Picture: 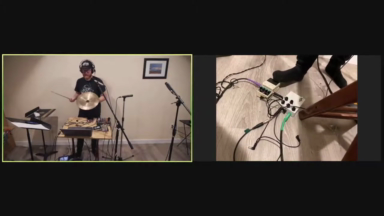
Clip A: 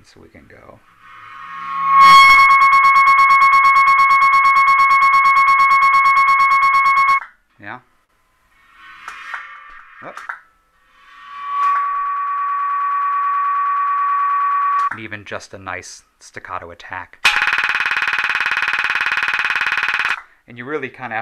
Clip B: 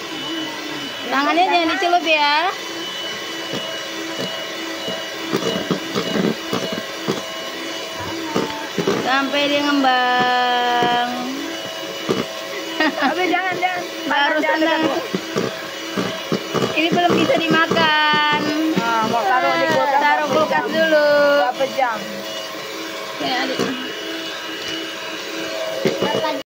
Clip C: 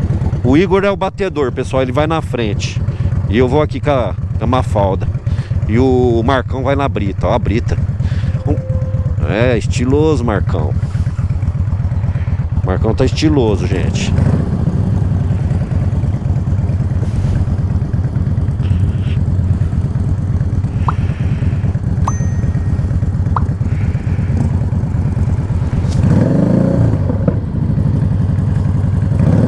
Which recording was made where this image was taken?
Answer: A